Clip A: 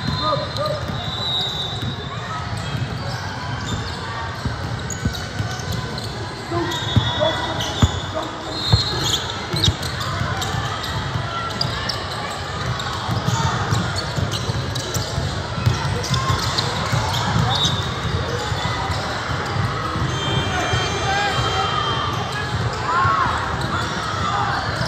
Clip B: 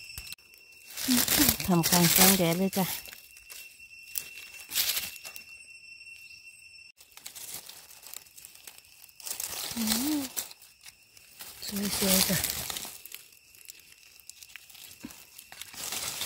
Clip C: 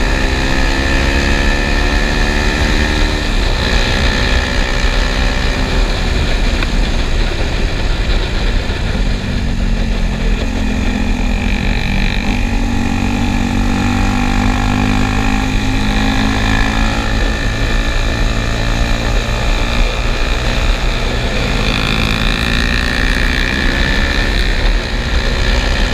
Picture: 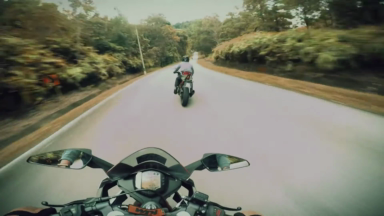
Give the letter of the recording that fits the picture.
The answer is C